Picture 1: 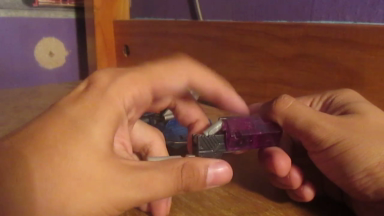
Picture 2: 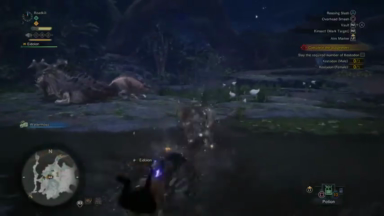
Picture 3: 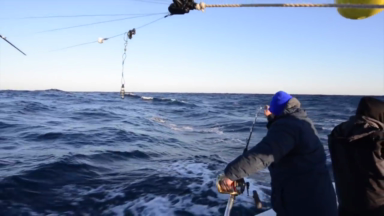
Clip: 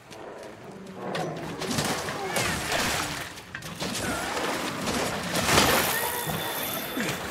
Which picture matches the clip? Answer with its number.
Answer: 2